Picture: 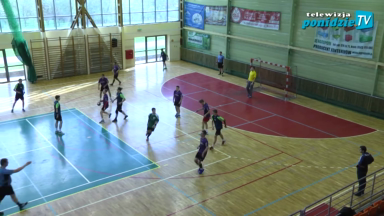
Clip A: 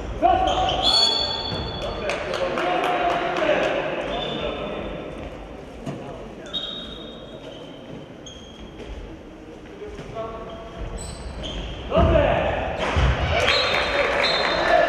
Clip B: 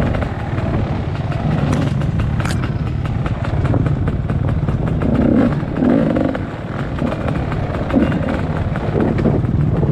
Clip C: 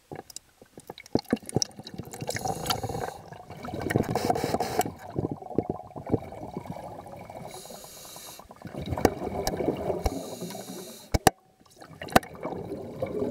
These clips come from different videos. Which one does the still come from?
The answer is A